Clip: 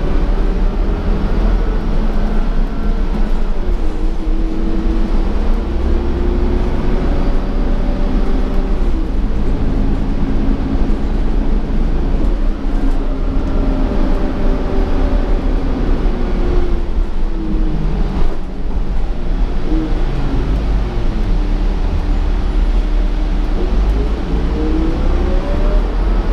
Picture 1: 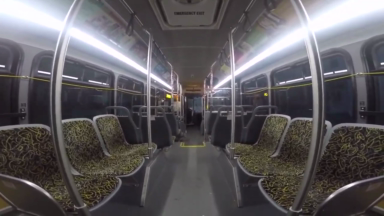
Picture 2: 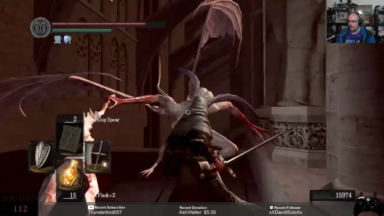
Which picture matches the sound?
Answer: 1